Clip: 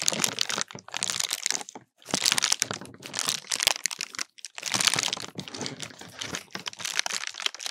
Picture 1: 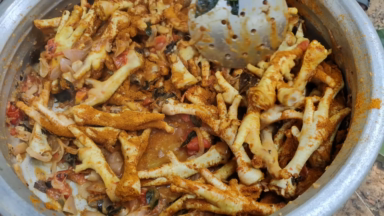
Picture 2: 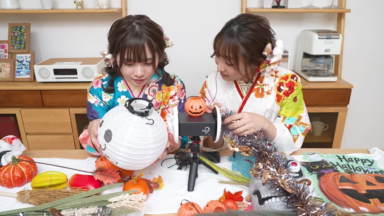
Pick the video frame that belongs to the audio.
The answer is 2